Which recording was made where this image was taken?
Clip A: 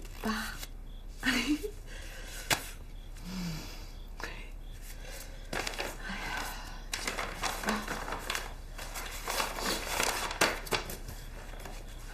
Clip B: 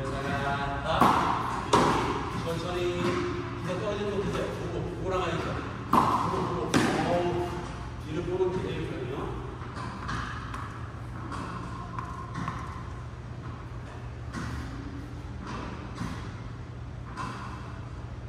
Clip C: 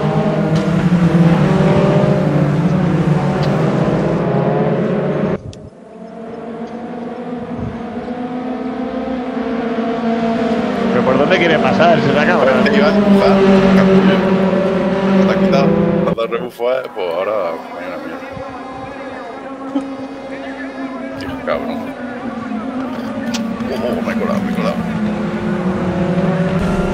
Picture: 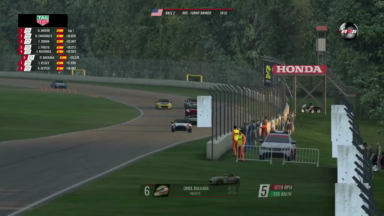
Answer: C